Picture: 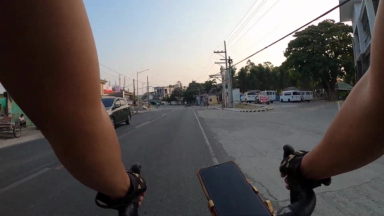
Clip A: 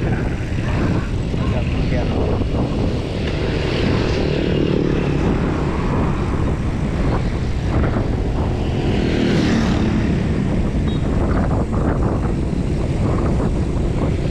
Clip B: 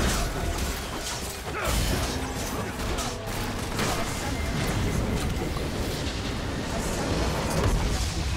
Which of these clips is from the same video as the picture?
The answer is A